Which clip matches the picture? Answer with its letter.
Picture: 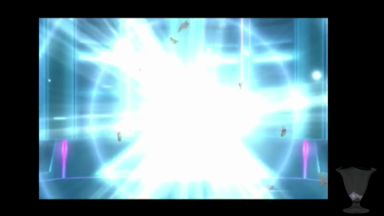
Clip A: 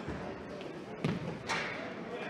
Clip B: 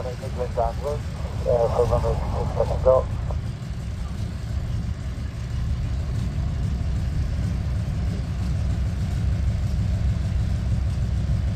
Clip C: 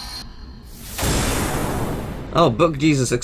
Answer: C